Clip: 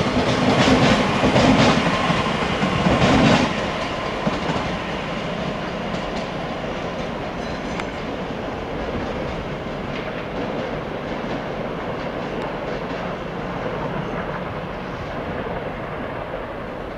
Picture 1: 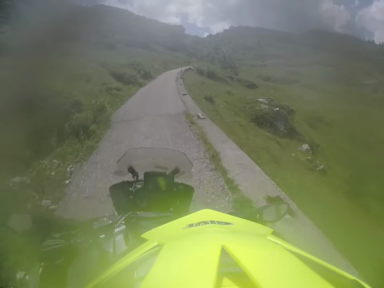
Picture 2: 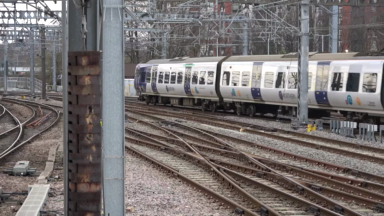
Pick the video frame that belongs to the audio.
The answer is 2